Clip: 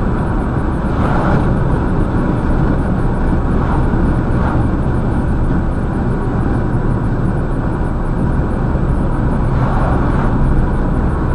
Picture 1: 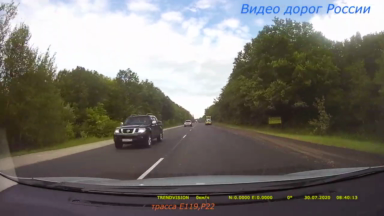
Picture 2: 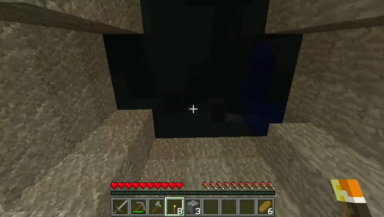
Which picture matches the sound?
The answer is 1